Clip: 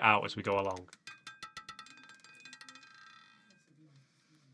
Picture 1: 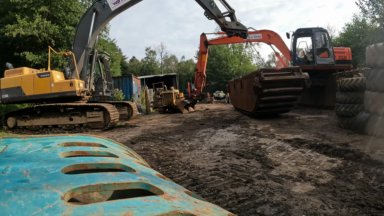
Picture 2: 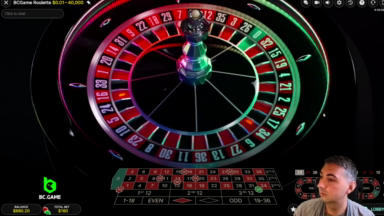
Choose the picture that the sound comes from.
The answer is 2